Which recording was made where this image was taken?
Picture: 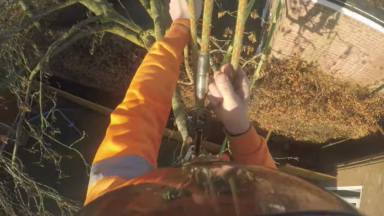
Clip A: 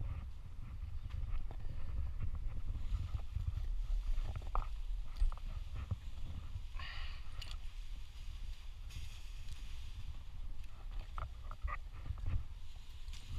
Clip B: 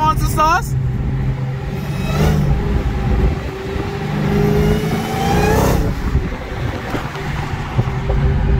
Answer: A